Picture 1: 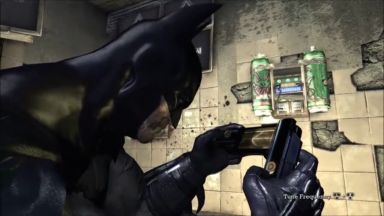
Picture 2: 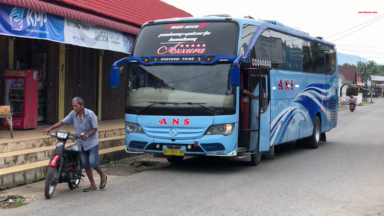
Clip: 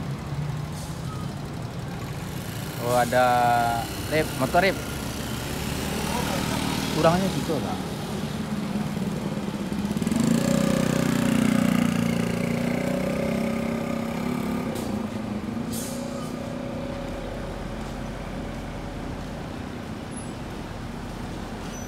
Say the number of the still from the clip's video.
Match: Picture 2